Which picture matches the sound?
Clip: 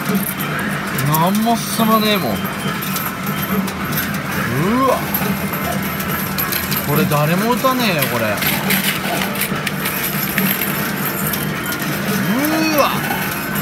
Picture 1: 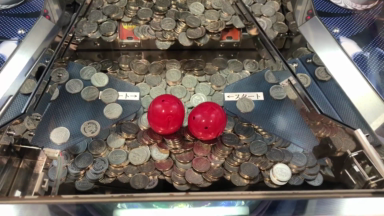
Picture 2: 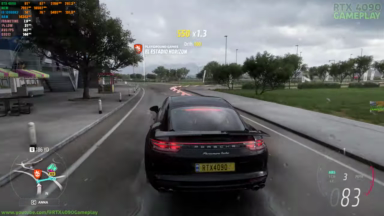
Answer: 1